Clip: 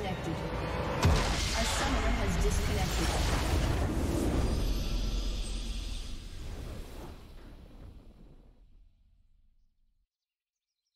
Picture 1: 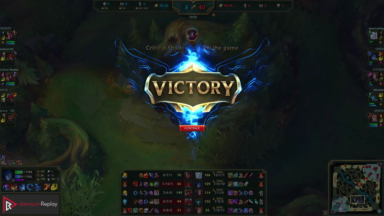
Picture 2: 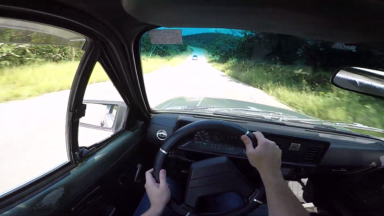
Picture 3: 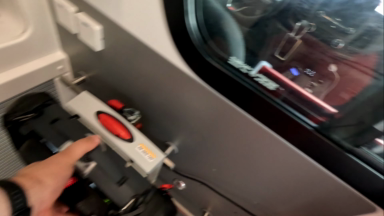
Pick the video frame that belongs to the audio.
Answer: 1